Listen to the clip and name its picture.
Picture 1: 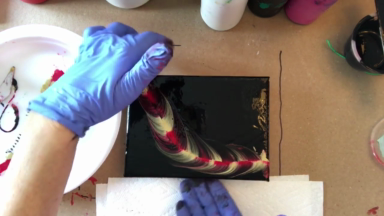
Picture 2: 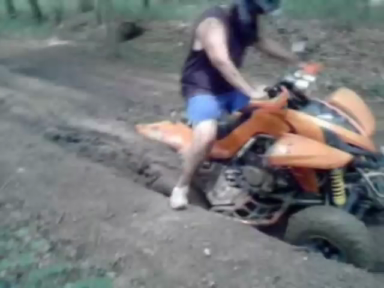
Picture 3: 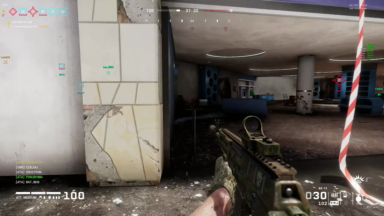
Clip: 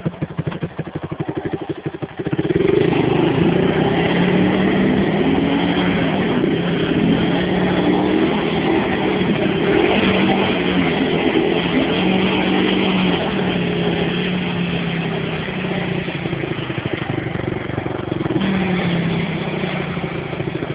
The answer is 2